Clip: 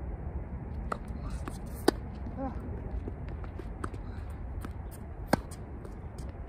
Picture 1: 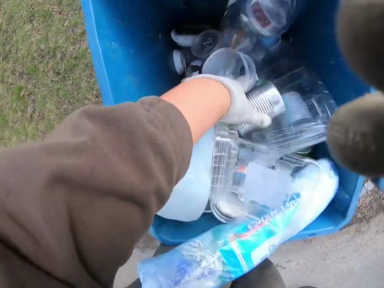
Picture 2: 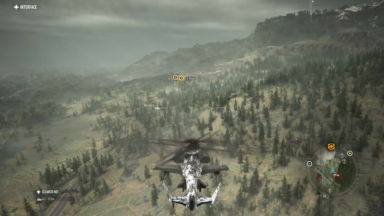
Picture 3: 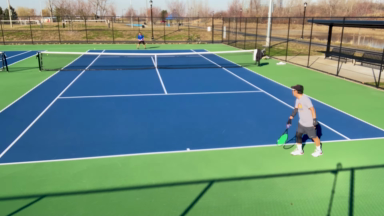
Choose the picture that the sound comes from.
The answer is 3